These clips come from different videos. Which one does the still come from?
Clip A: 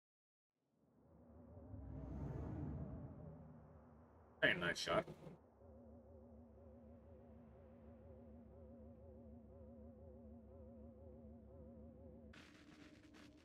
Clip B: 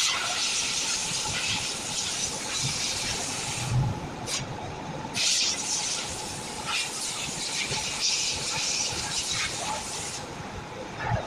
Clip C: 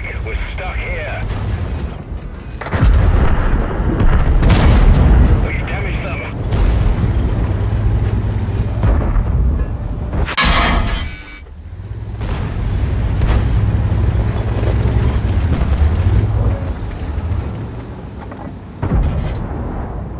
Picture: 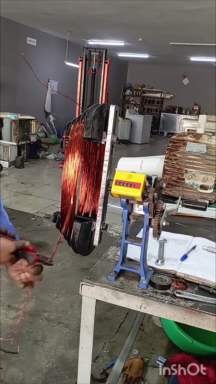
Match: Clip B